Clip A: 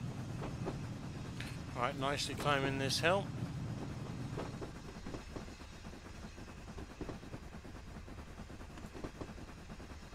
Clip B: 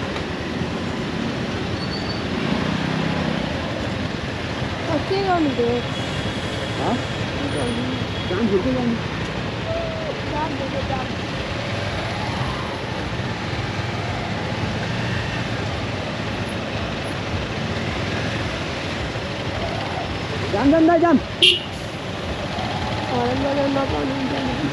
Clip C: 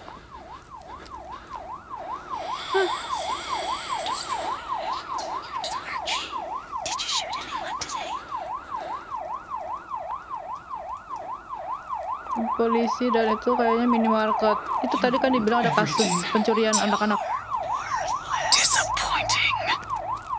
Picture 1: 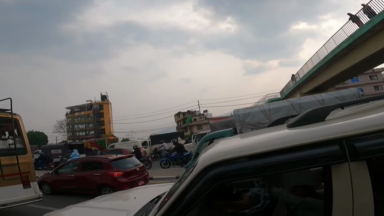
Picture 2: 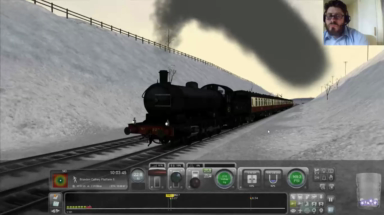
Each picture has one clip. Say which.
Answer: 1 B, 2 A